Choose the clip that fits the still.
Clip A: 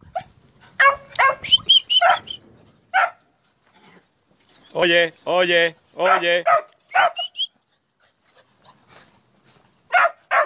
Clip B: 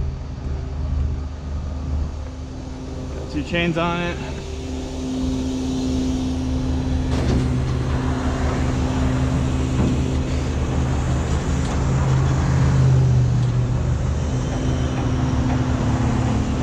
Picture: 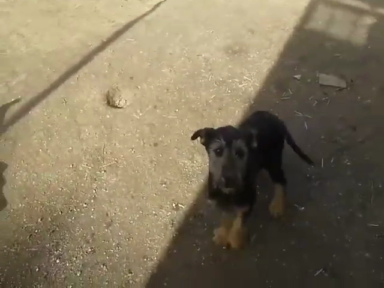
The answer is A